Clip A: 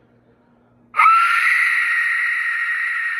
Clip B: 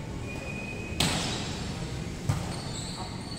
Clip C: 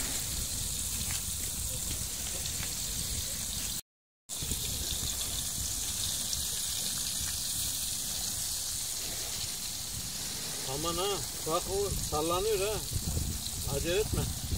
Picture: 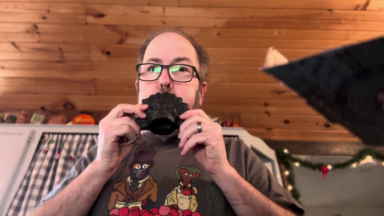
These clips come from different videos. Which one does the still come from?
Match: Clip A